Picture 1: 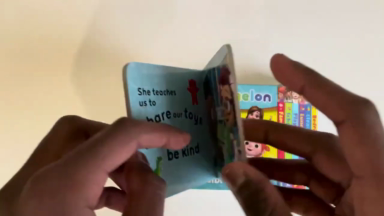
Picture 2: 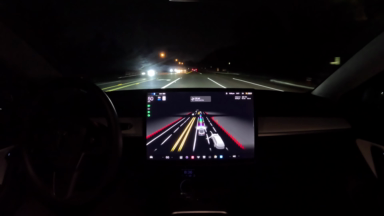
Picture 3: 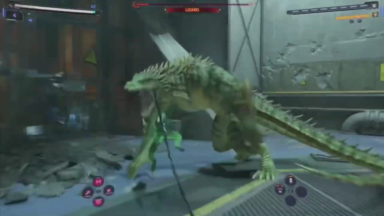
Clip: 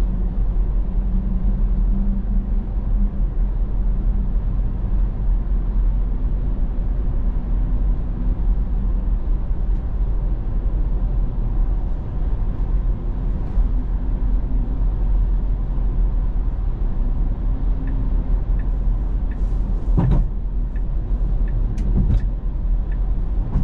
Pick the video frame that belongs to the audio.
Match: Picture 2